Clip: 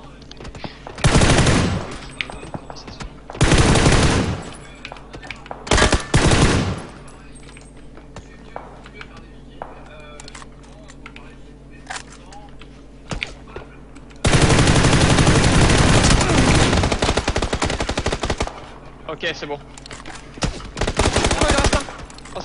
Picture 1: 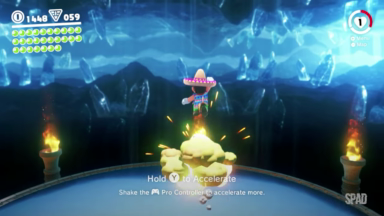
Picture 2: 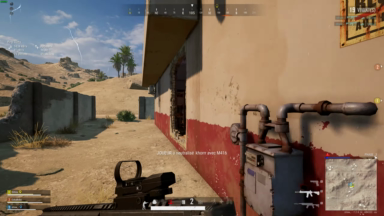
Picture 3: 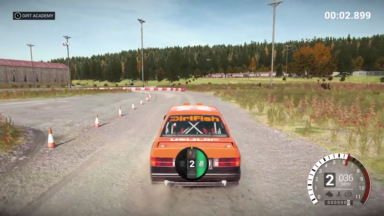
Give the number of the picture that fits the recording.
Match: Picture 2